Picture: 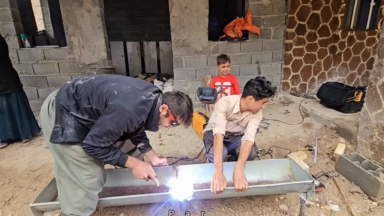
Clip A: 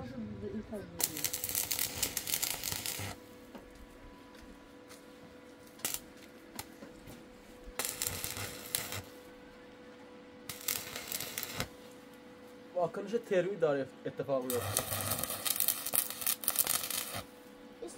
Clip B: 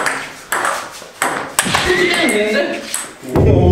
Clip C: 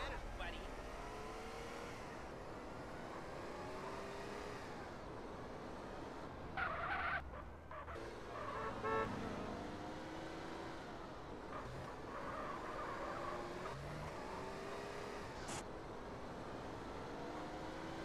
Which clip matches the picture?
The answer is A